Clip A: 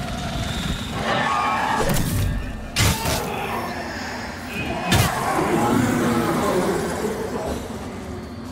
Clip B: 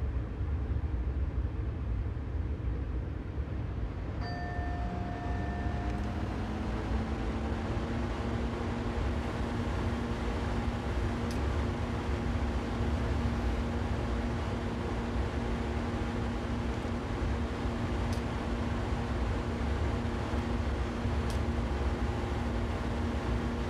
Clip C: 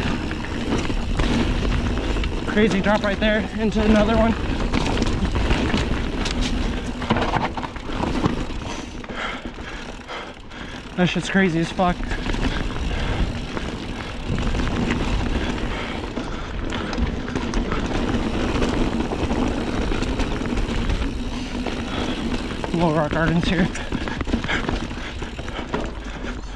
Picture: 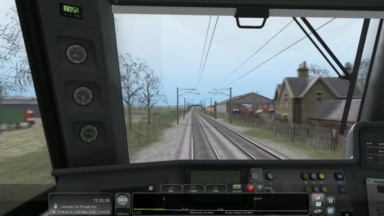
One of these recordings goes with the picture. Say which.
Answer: B